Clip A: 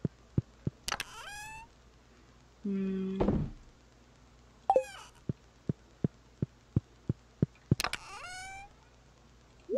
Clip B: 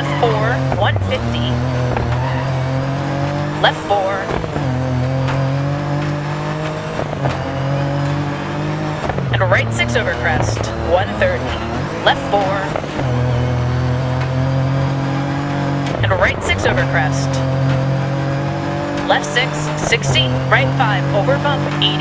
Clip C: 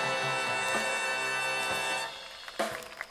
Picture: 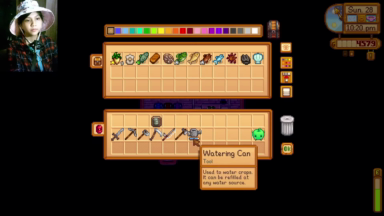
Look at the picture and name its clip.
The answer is A